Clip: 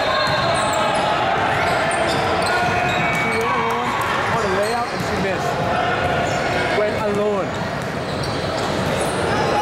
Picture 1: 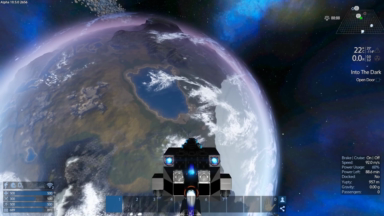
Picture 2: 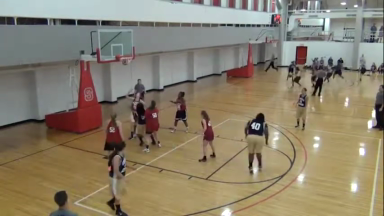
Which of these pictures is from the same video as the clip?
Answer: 2